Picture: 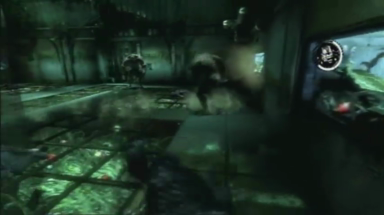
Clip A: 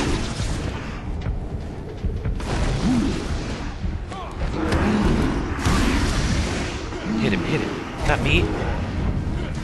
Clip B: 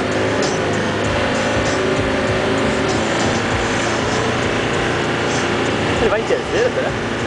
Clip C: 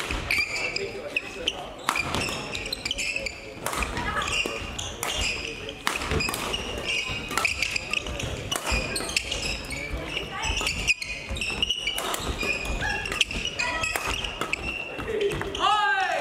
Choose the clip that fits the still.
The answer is A